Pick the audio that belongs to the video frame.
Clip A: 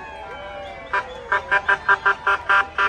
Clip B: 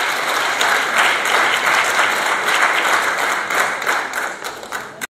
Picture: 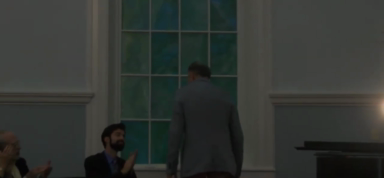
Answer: B